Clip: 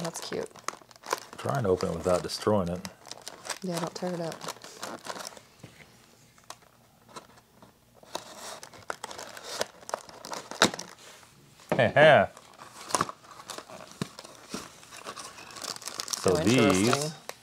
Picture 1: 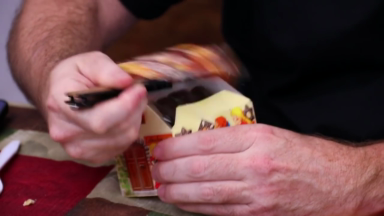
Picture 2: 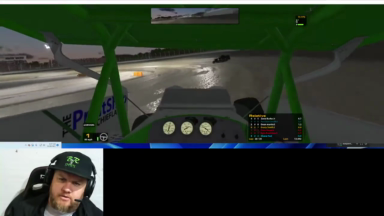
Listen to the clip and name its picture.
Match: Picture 1